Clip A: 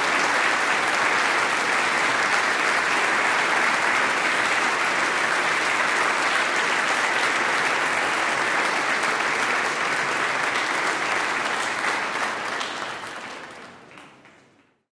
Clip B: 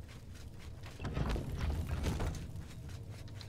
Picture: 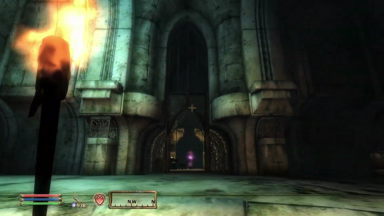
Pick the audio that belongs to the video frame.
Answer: B